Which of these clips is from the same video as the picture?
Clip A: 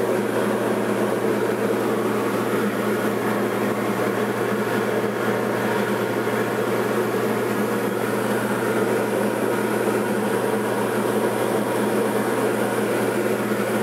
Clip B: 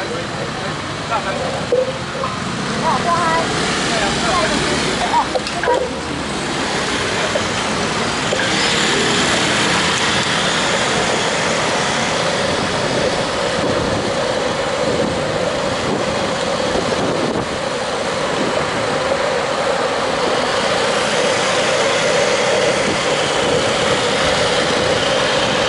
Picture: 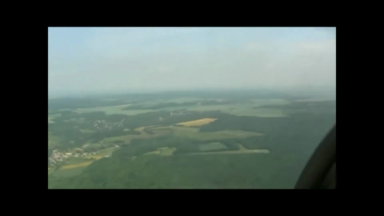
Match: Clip A